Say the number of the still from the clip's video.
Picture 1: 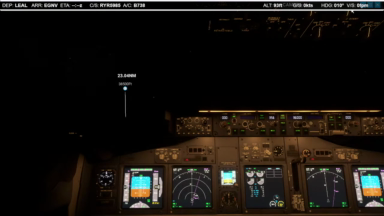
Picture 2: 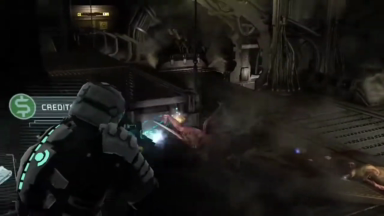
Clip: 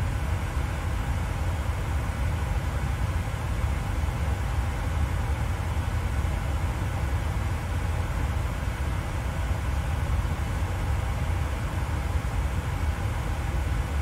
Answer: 1